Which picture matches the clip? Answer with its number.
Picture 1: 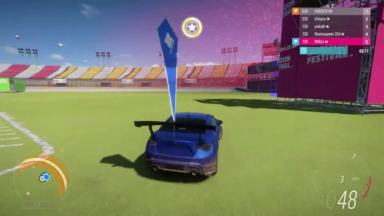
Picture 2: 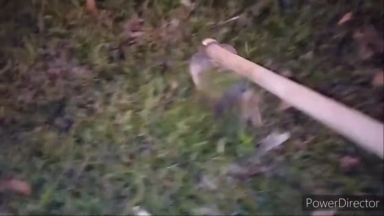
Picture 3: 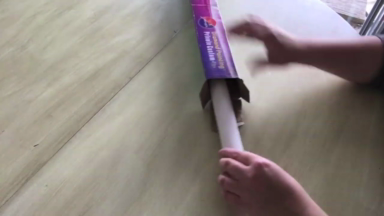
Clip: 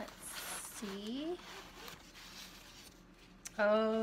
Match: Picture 3